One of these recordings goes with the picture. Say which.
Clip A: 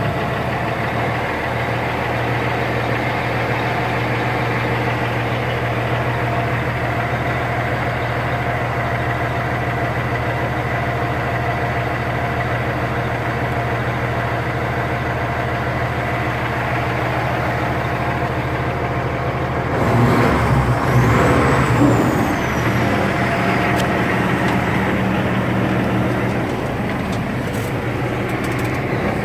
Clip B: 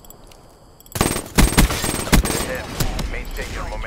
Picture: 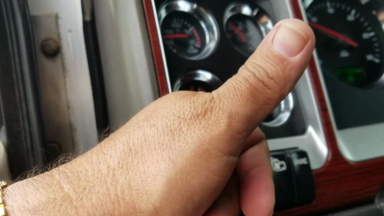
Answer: A